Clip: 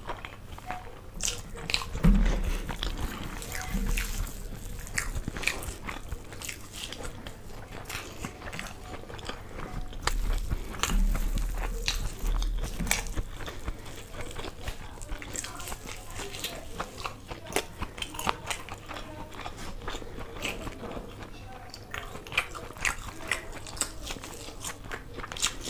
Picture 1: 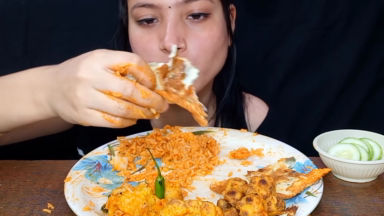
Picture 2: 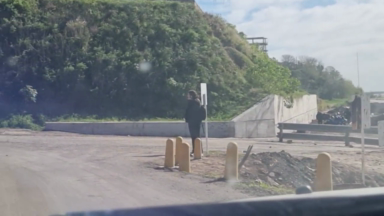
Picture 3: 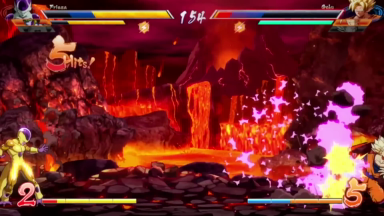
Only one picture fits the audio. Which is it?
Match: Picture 1